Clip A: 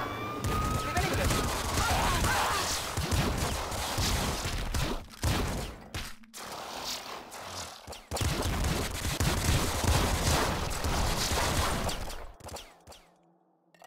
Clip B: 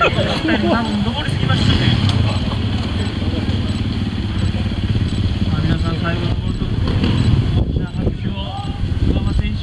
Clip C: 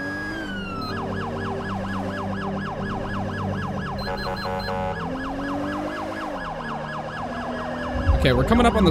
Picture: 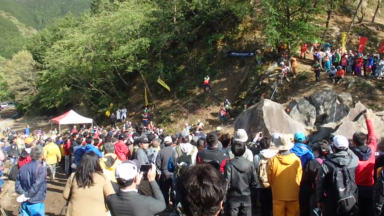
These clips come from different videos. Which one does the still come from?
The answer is B